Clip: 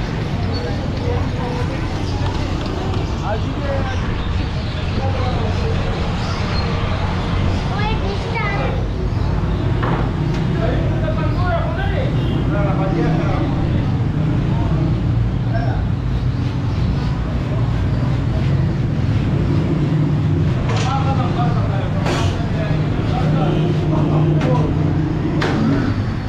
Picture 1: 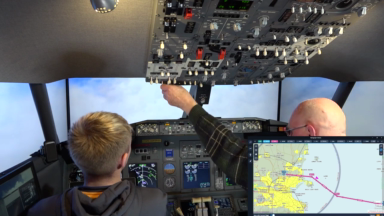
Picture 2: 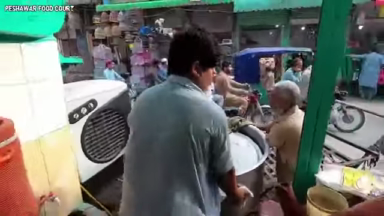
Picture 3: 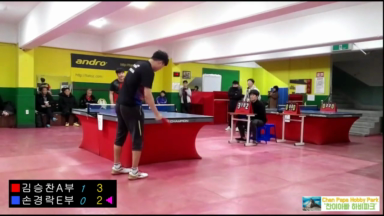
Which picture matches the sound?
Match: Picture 2